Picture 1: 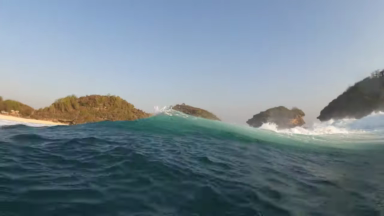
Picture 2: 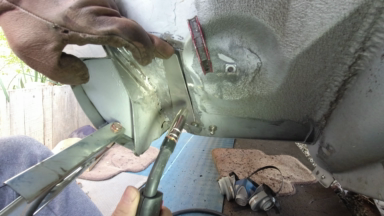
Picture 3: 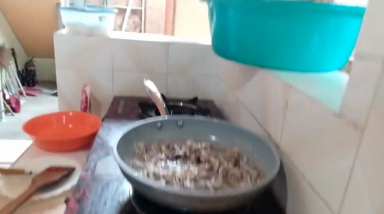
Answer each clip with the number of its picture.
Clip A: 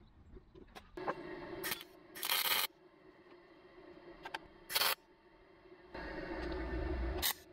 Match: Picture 2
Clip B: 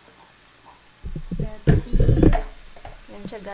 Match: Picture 3